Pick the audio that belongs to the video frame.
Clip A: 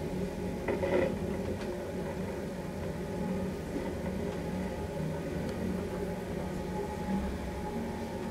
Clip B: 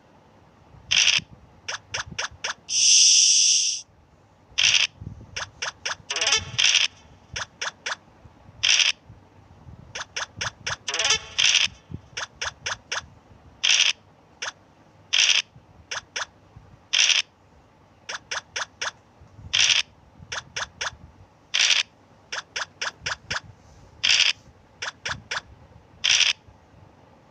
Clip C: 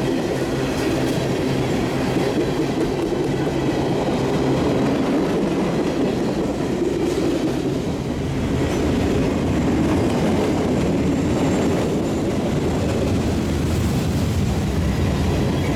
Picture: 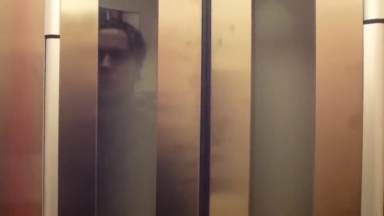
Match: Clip A